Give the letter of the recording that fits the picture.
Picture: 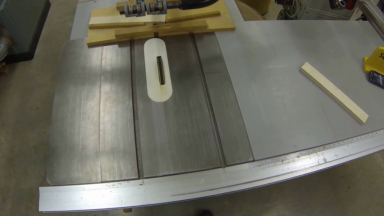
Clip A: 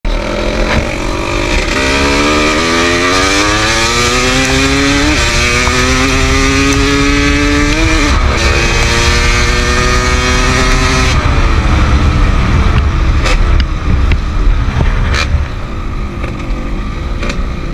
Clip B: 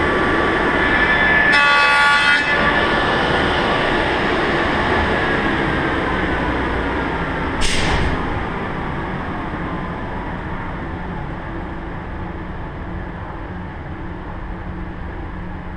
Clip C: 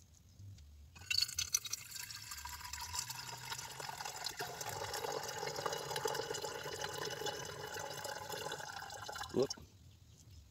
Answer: B